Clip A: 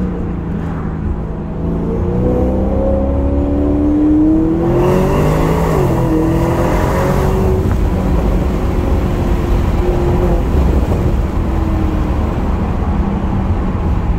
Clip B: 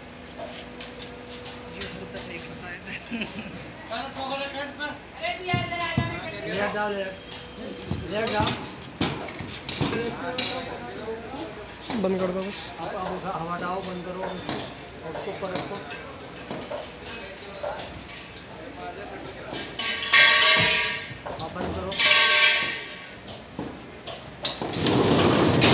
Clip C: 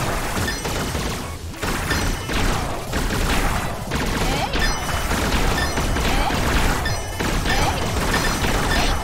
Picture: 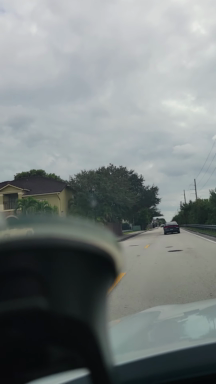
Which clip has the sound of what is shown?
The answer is A